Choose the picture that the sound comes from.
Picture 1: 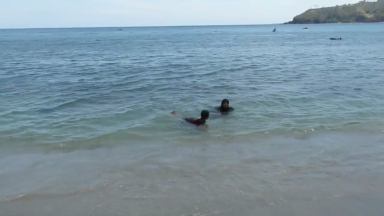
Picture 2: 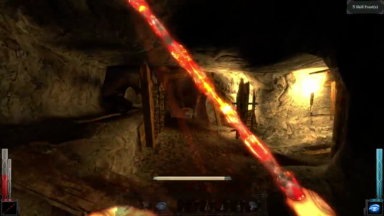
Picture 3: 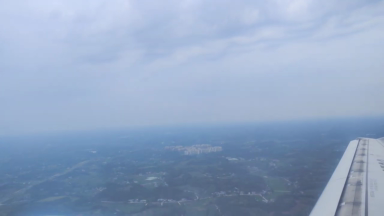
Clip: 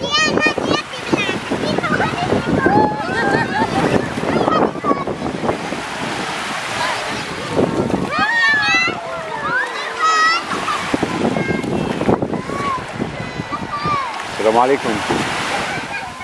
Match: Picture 1